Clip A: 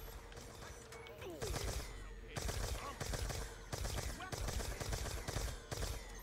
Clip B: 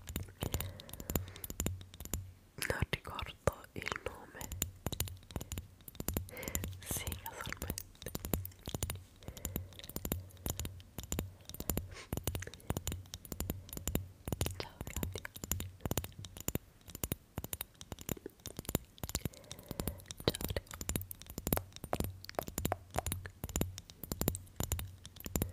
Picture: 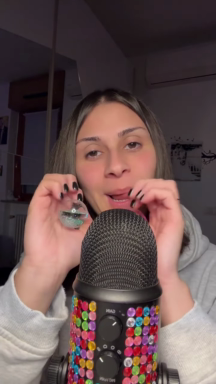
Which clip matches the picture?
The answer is B